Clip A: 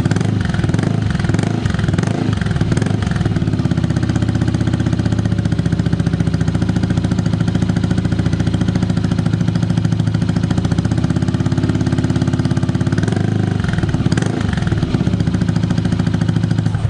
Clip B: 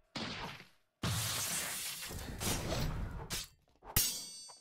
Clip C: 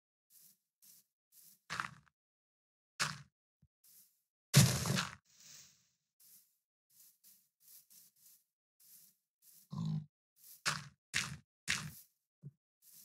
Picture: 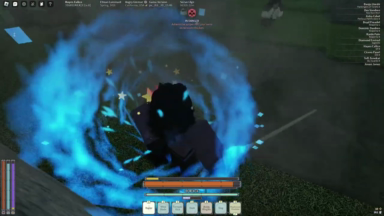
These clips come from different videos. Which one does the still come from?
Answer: B